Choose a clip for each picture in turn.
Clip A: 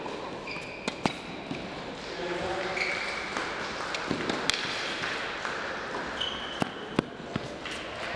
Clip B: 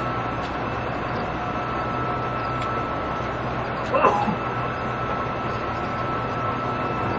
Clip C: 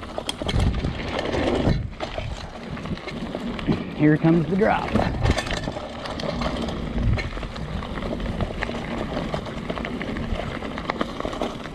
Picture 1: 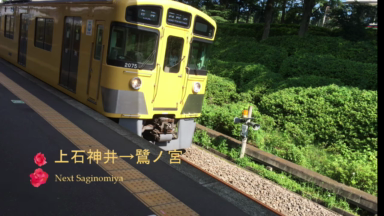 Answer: B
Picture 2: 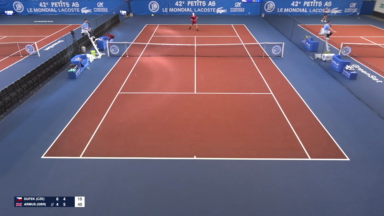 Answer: A